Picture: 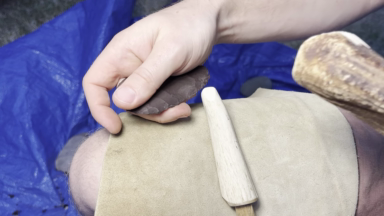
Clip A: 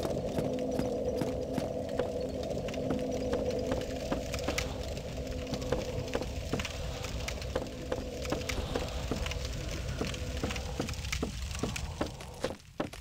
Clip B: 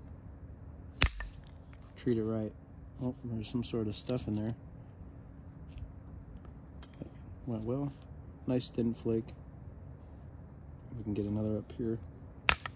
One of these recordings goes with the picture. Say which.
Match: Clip B